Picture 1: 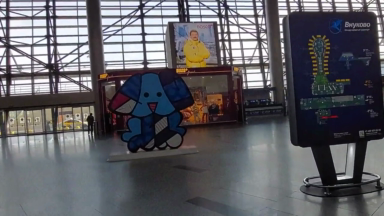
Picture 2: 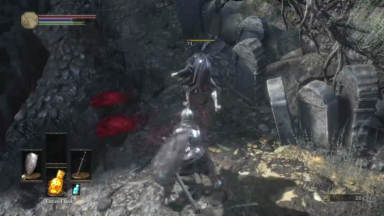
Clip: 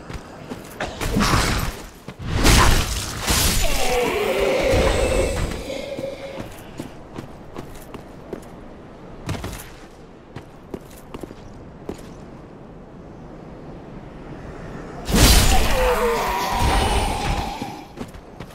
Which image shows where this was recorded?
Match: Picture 2